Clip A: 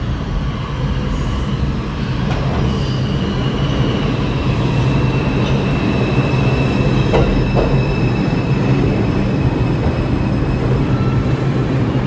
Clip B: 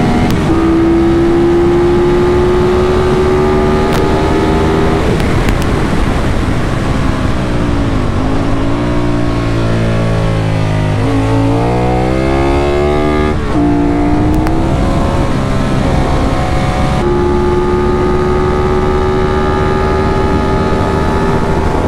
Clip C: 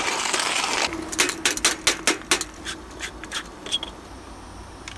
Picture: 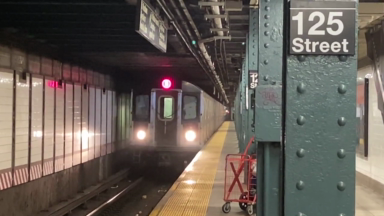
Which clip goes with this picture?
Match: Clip A